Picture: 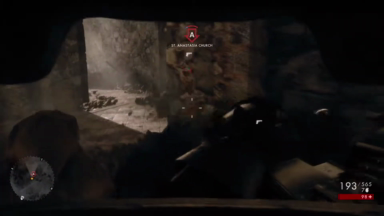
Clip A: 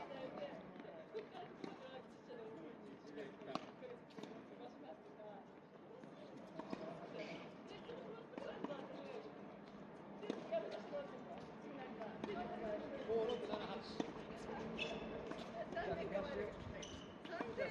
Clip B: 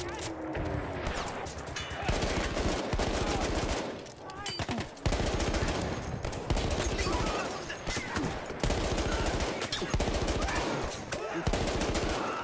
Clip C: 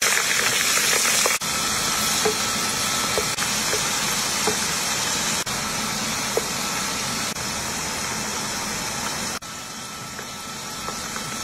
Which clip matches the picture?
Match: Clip B